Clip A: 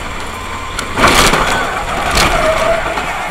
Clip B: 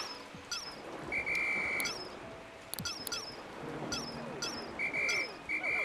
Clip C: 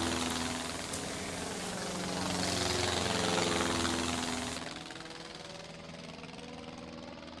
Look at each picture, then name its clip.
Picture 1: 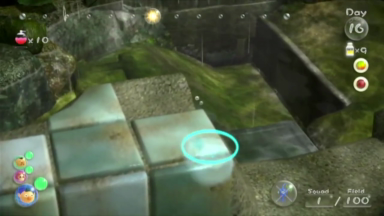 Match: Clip B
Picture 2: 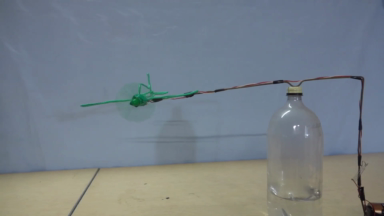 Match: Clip C